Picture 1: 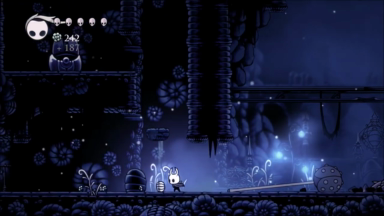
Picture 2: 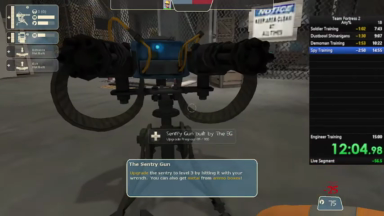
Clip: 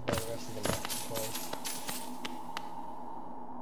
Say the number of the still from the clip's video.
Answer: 1